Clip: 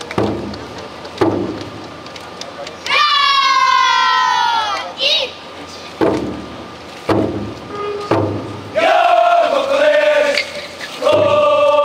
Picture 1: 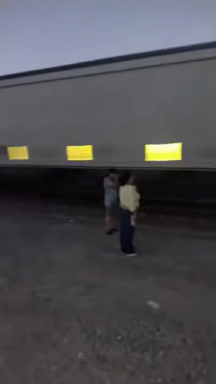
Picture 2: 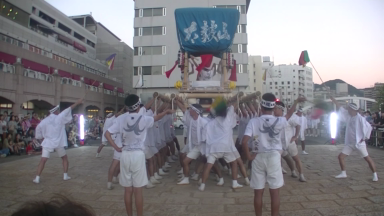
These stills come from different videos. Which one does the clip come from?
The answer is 2